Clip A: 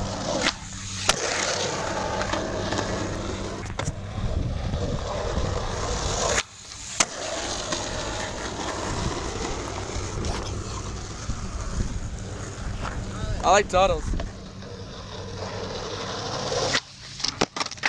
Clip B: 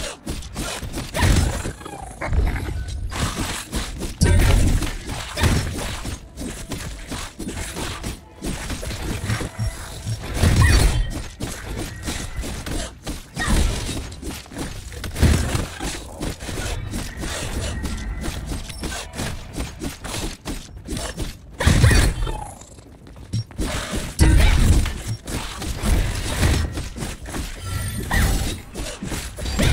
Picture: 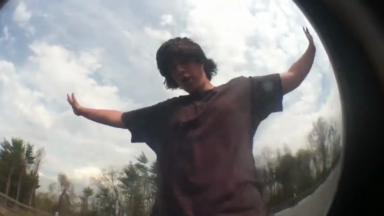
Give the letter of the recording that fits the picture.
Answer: A